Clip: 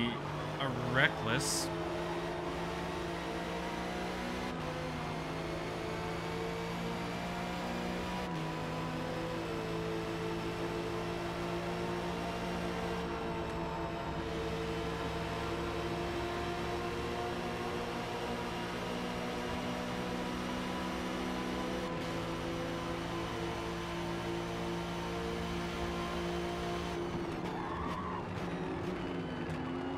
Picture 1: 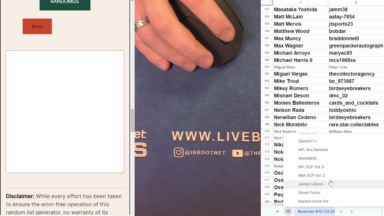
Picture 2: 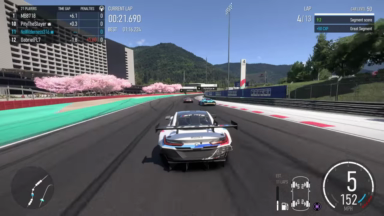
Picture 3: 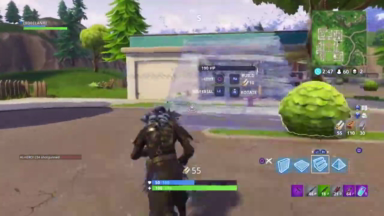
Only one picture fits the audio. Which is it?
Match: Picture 2